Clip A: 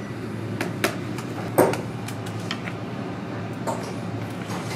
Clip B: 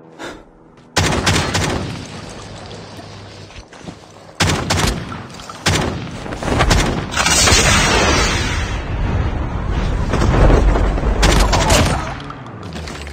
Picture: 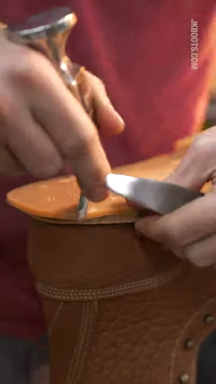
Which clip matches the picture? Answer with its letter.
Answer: A